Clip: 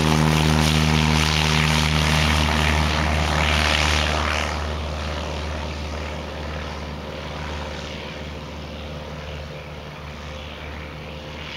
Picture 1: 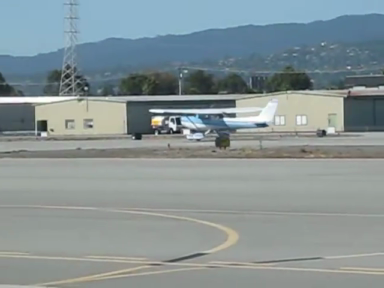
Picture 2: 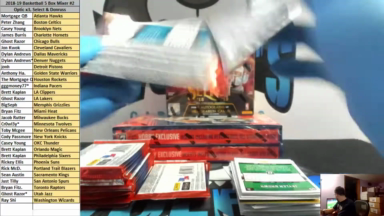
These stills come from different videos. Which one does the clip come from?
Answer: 1